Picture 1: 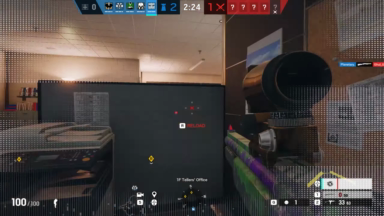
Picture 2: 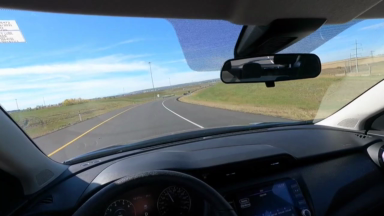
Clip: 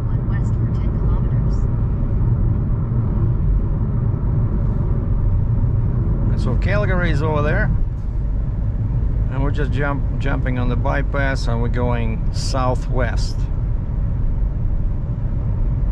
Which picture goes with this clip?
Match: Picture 2